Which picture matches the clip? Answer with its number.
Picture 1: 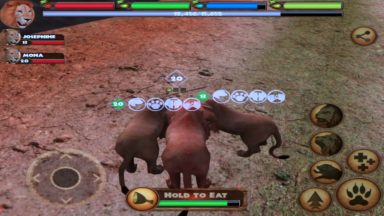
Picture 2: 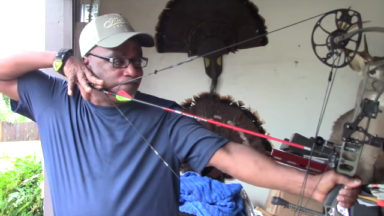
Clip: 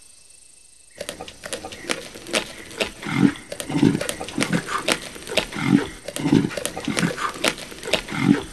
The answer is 1